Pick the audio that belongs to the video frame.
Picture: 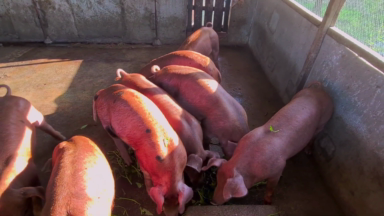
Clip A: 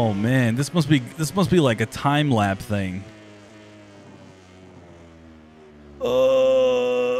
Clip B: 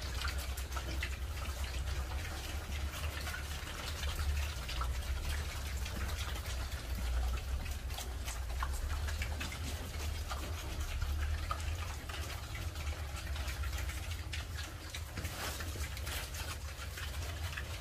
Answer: B